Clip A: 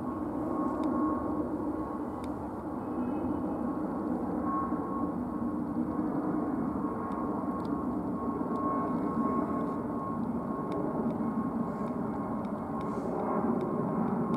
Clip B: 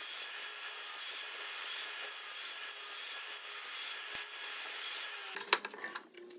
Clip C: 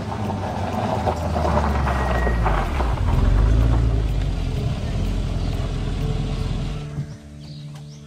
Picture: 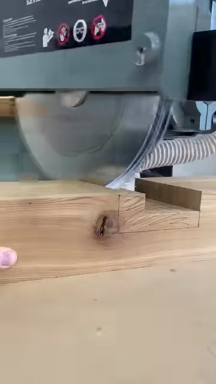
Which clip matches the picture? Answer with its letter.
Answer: B